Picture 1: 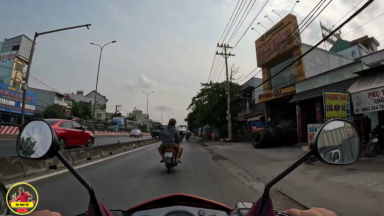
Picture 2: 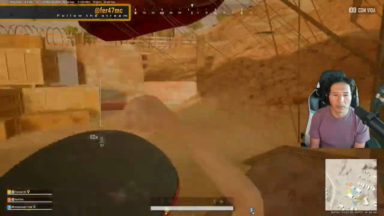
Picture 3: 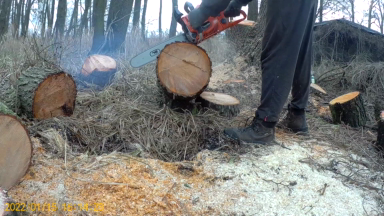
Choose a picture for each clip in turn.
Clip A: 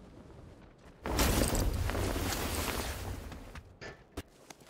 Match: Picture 2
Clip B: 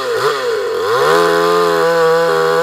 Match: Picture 3